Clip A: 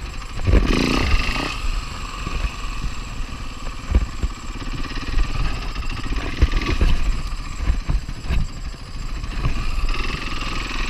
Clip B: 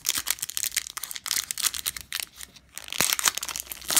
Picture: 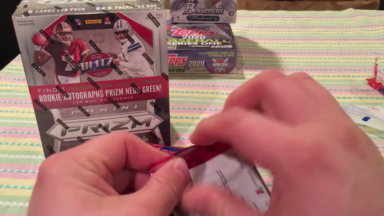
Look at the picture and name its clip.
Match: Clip B